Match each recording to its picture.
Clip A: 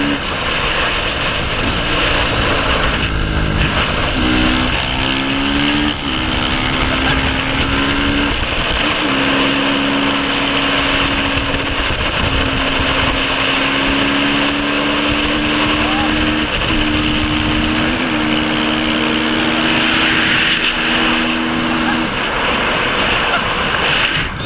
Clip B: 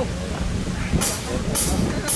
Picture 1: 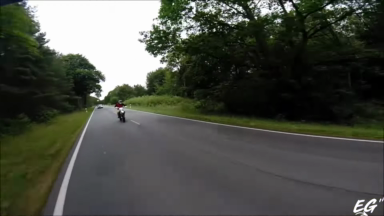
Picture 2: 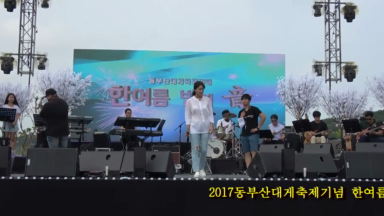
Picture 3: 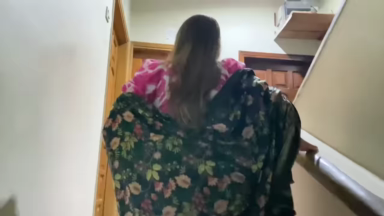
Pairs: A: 1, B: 2